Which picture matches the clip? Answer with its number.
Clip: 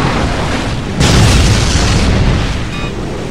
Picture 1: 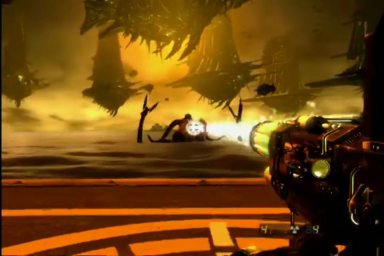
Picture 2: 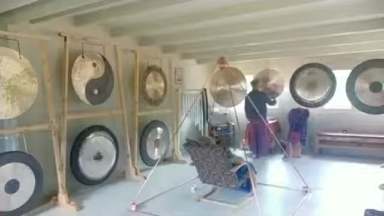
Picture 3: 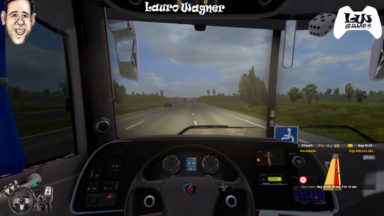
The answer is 1